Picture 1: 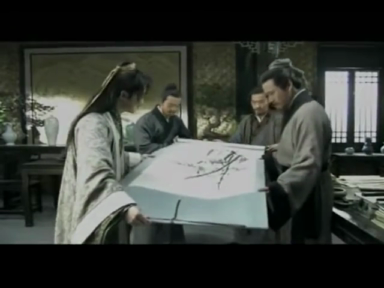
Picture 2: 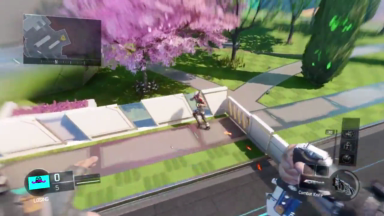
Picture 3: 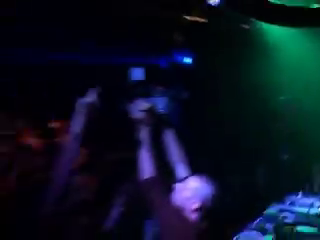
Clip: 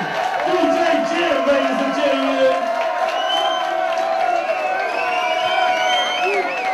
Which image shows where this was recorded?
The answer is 3